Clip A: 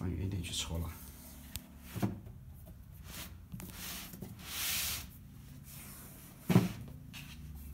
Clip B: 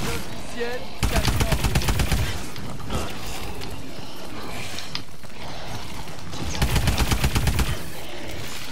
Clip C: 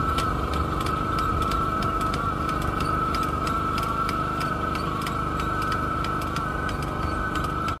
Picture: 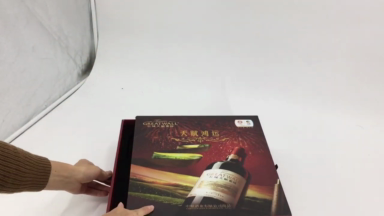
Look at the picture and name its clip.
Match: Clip A